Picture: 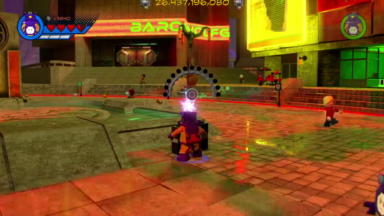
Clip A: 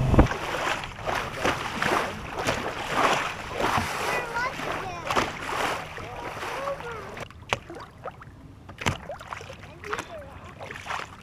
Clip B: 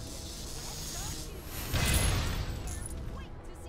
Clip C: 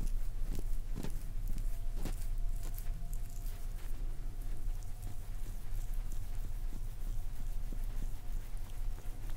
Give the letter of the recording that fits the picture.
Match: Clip B